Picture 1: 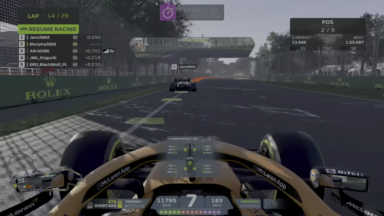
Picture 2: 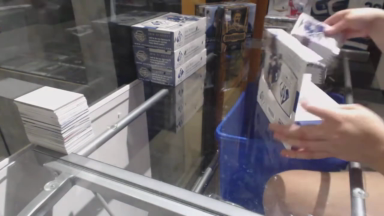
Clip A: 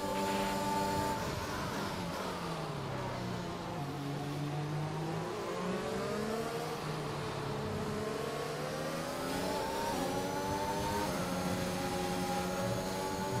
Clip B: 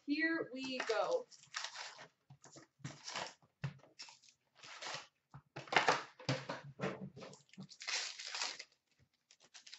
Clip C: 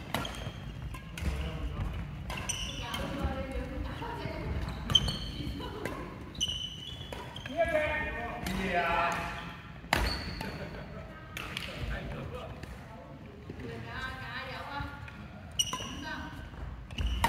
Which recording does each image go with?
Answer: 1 A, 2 B